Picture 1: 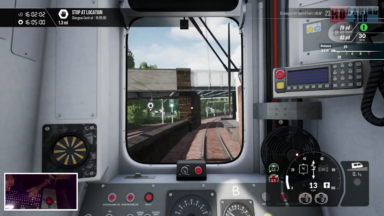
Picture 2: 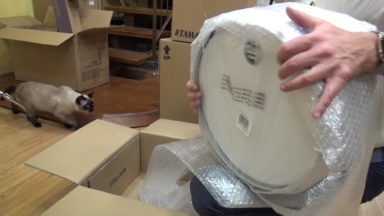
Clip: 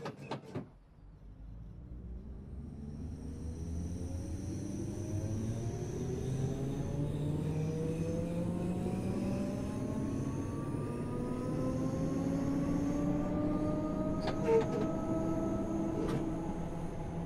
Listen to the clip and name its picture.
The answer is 1